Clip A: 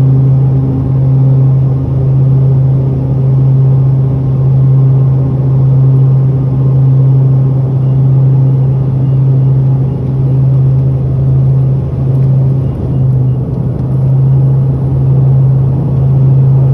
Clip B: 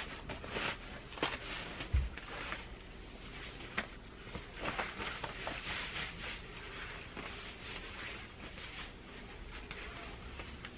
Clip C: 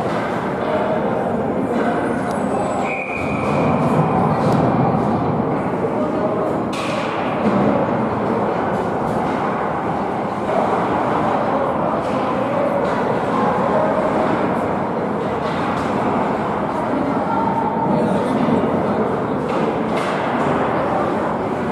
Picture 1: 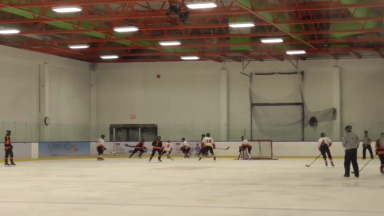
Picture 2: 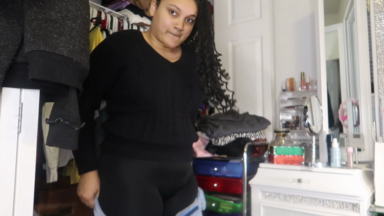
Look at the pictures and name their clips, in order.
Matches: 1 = C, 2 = B